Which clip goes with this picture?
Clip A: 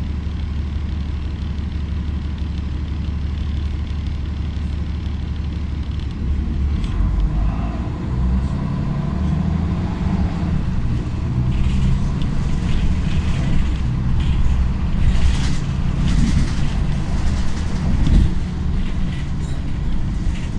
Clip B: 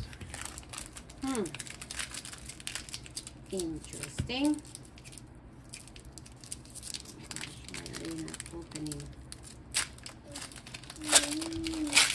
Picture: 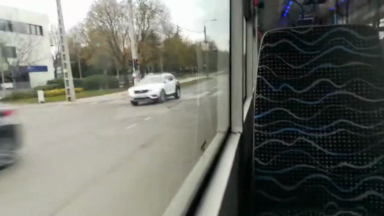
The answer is A